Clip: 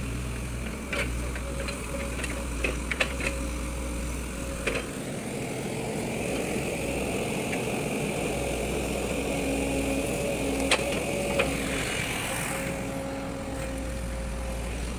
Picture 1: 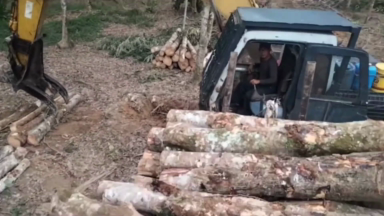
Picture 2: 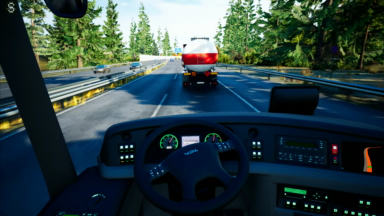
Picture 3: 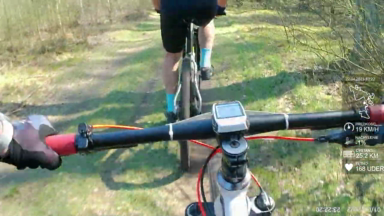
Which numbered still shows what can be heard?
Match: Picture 1